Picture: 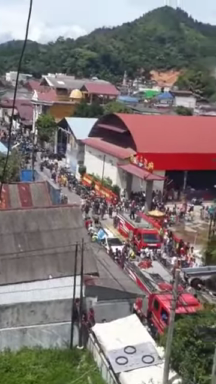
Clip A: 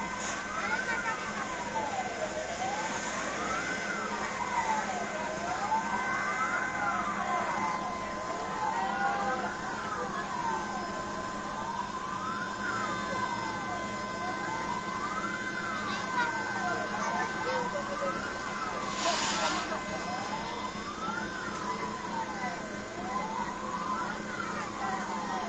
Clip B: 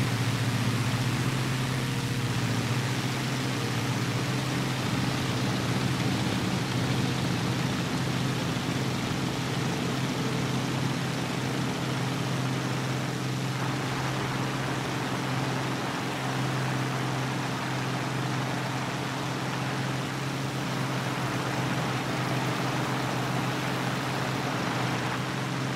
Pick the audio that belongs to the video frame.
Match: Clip A